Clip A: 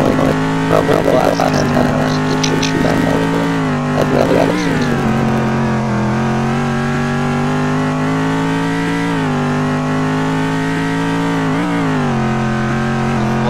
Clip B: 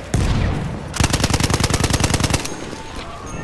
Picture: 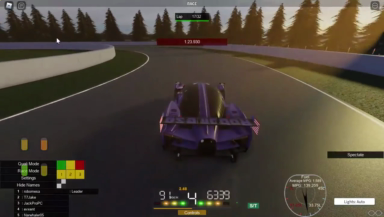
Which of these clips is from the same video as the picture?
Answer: A